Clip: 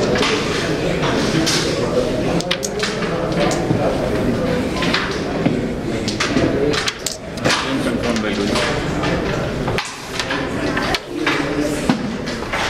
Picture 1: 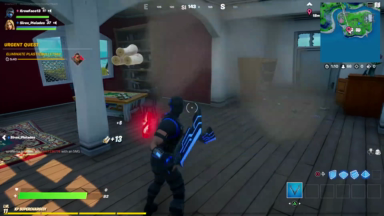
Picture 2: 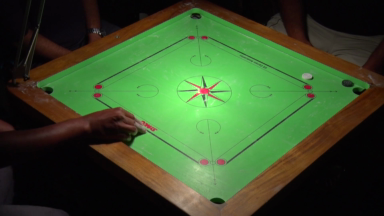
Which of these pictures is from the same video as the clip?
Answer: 2